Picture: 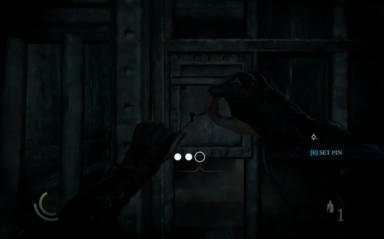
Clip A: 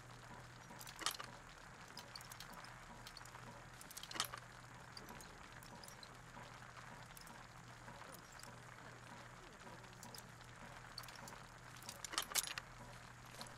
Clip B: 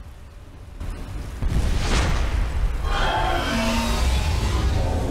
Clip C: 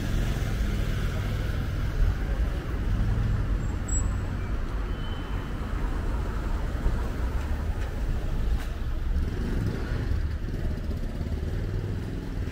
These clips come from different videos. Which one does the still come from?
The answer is A